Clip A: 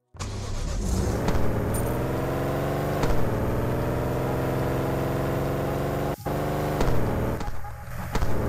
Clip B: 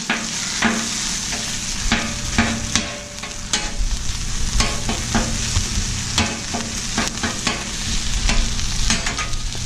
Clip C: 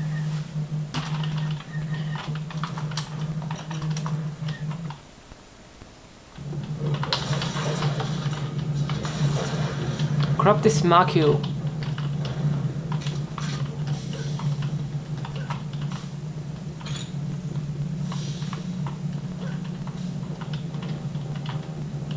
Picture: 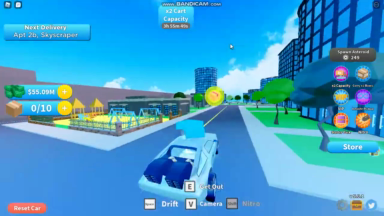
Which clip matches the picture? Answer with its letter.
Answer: A